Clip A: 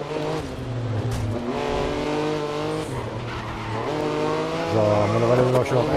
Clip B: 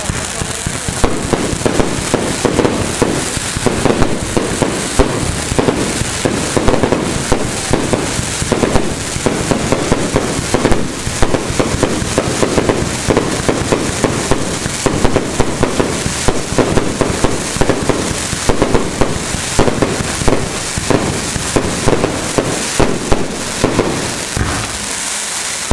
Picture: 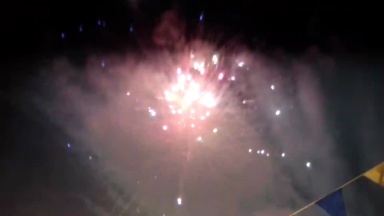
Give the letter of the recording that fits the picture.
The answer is B